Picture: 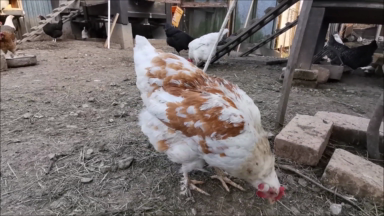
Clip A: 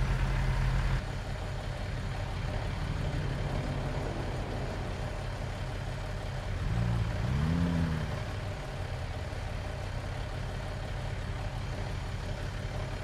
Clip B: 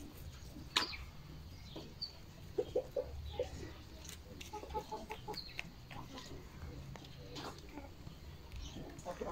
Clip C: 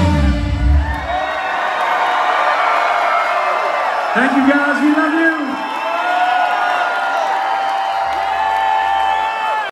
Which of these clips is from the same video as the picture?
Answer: B